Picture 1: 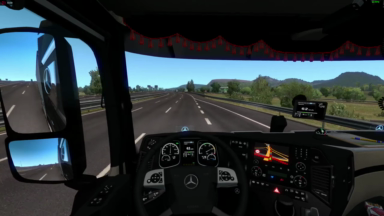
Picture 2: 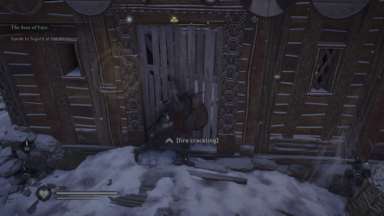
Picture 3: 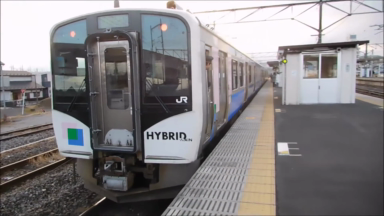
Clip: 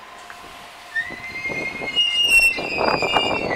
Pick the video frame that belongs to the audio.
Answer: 3